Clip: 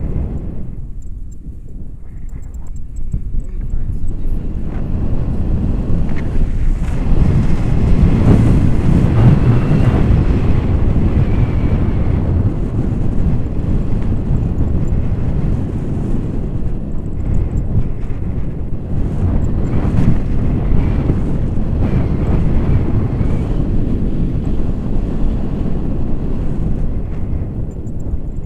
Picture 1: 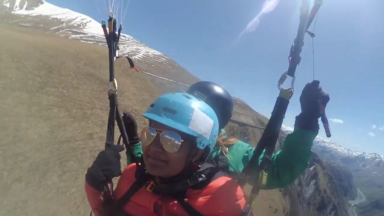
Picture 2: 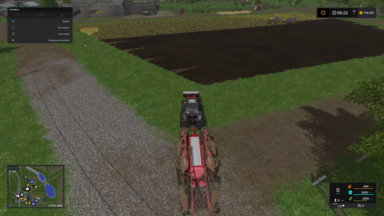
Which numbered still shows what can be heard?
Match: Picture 1